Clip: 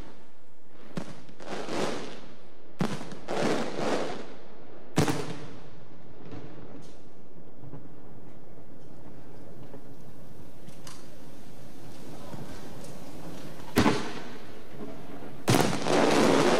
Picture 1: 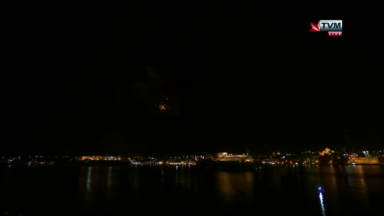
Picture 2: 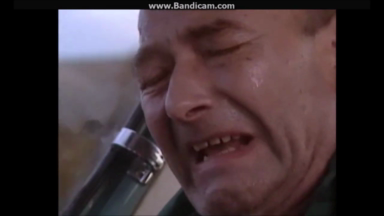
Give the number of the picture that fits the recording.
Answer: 1